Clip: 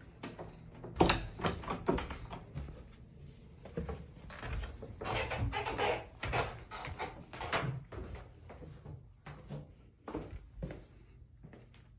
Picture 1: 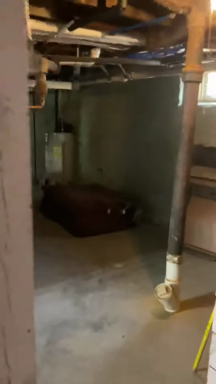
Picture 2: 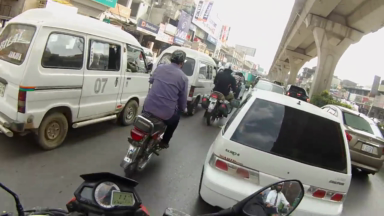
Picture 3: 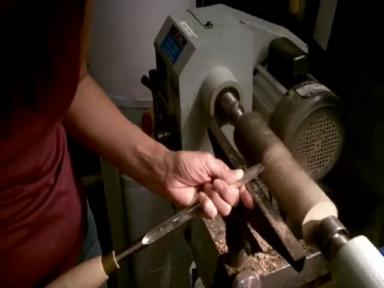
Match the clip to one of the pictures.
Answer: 1